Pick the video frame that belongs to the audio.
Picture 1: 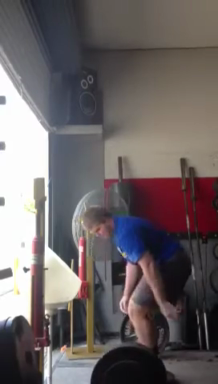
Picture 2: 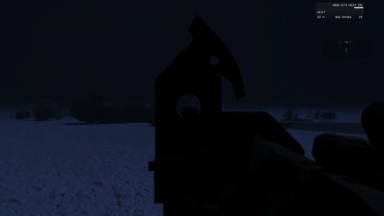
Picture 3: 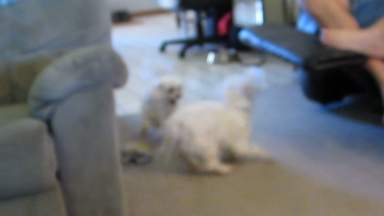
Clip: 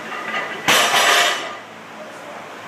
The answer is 1